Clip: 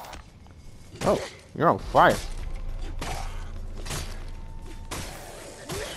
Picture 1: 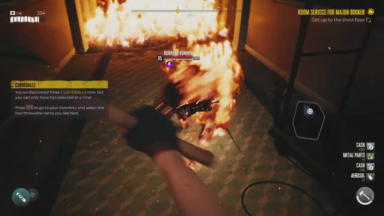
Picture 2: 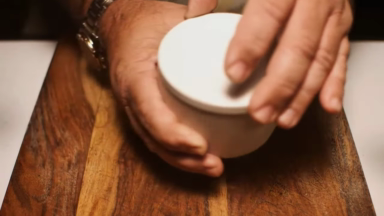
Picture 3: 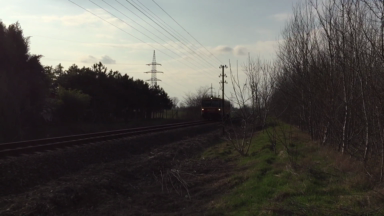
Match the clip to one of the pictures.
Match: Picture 1